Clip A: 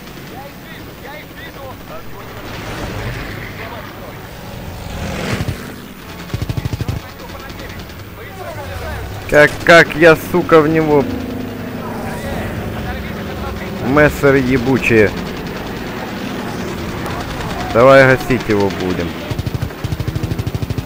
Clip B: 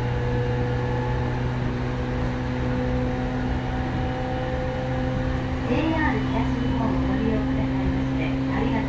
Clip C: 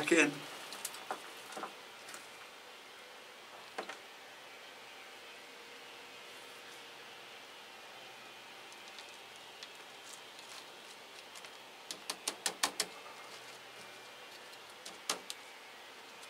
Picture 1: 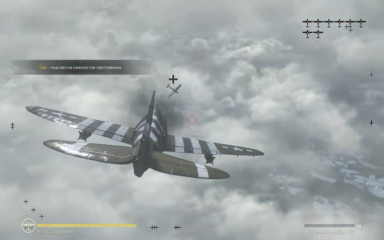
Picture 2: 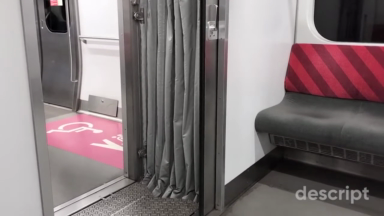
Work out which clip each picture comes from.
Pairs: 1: A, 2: B